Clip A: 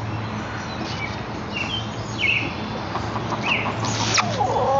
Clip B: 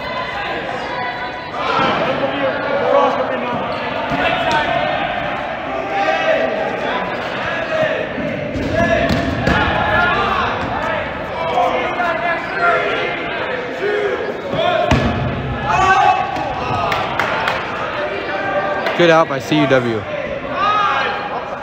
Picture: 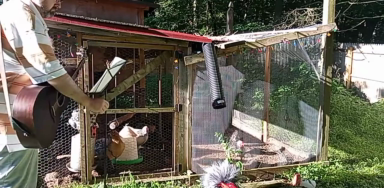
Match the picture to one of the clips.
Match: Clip A